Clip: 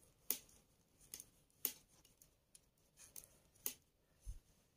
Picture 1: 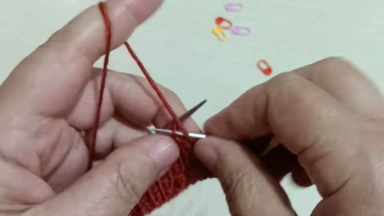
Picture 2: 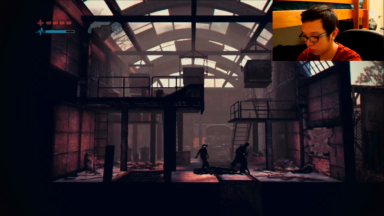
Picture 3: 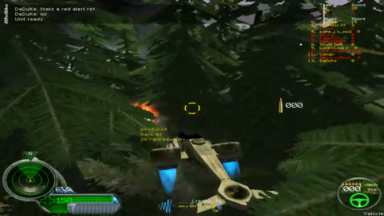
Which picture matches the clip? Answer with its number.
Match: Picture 1